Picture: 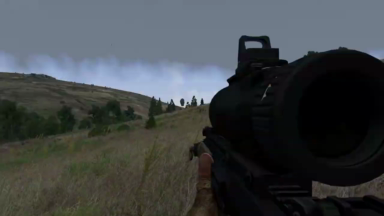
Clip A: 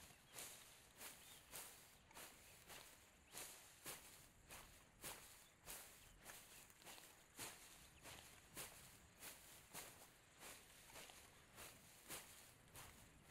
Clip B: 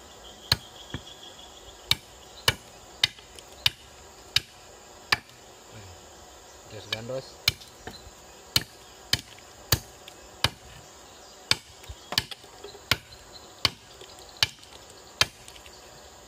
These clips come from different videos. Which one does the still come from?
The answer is A